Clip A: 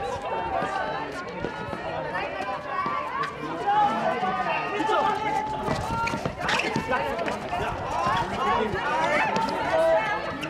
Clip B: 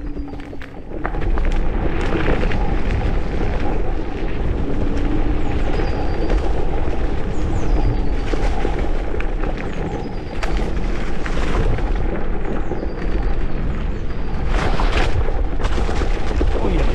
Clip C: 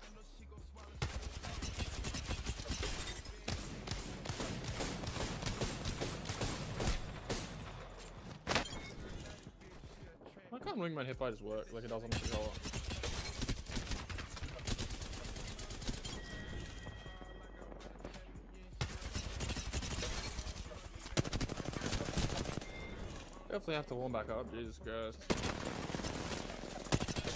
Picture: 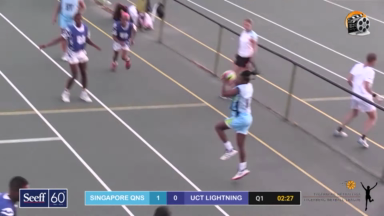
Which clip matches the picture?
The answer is A